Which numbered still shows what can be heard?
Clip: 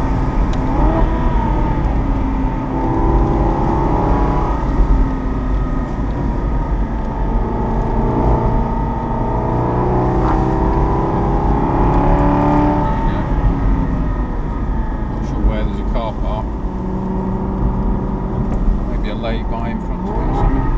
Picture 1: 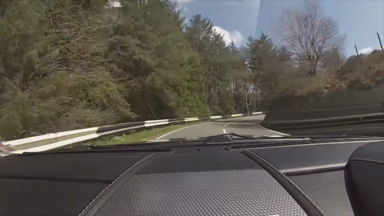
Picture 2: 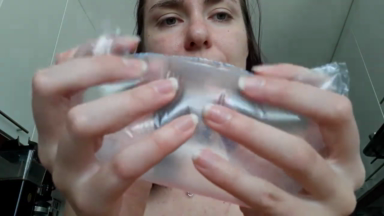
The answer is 1